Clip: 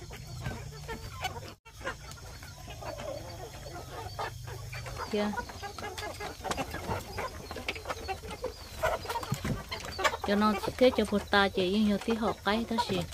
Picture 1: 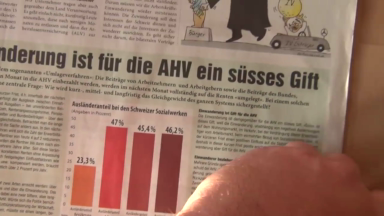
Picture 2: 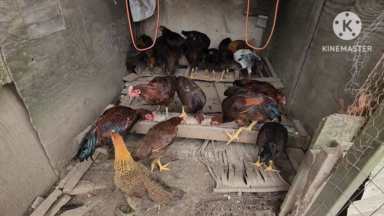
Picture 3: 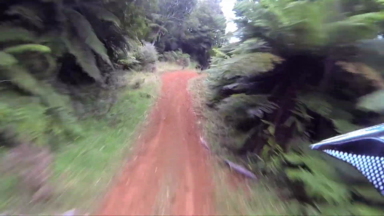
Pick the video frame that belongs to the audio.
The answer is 2